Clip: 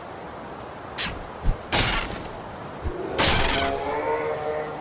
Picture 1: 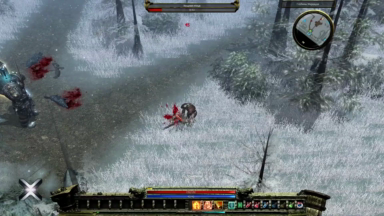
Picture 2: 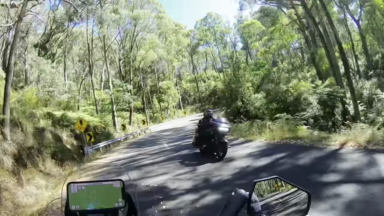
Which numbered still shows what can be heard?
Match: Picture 1